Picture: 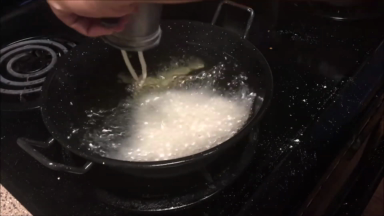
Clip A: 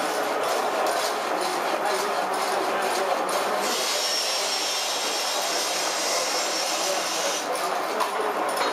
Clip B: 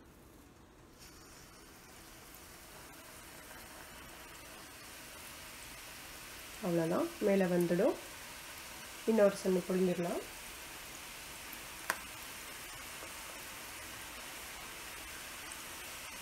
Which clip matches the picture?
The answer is B